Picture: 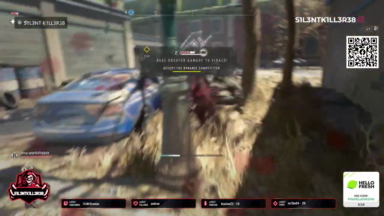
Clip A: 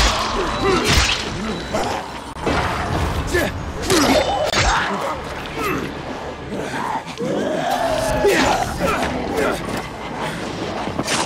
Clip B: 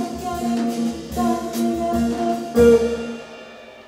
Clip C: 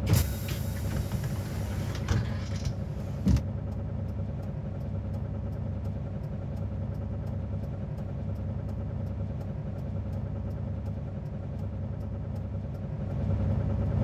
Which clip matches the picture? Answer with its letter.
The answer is A